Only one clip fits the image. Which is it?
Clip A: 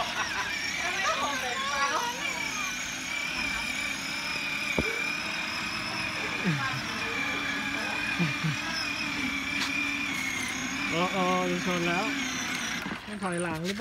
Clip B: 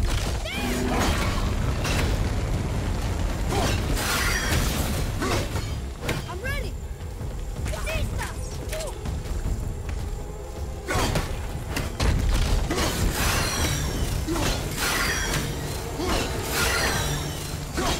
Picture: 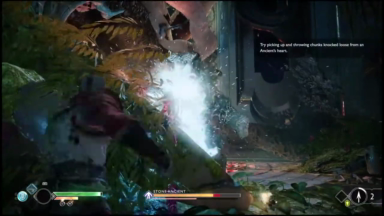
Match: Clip B